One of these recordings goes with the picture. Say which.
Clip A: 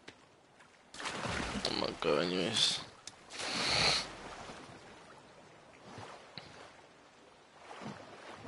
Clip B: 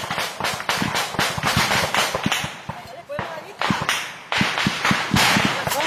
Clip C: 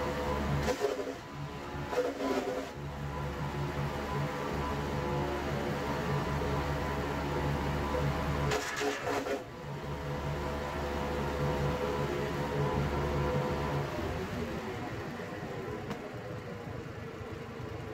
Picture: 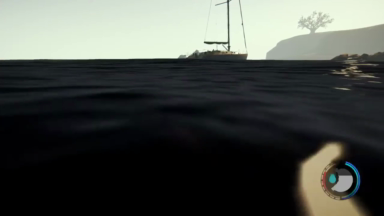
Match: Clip A